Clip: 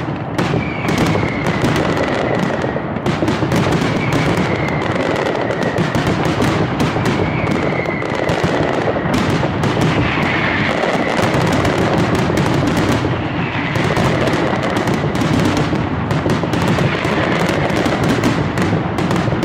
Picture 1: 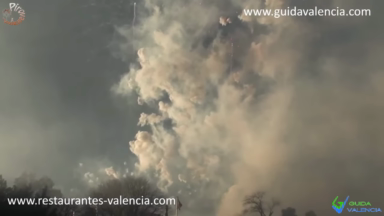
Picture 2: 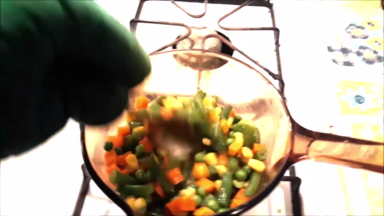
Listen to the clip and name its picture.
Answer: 1